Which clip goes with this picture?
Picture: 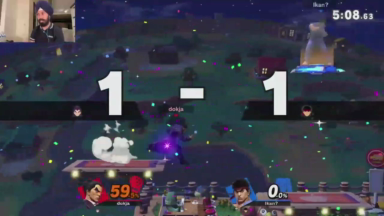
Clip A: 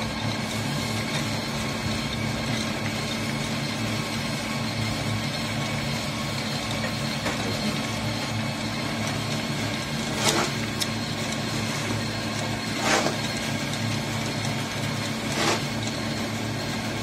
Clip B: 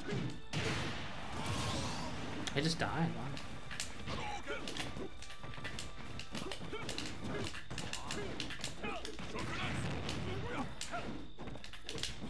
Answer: B